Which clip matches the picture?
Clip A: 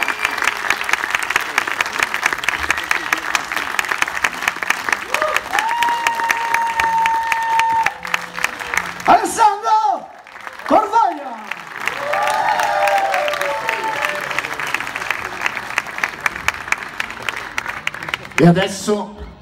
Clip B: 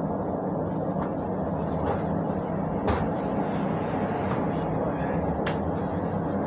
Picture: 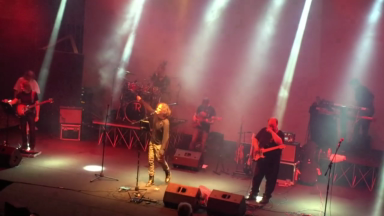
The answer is A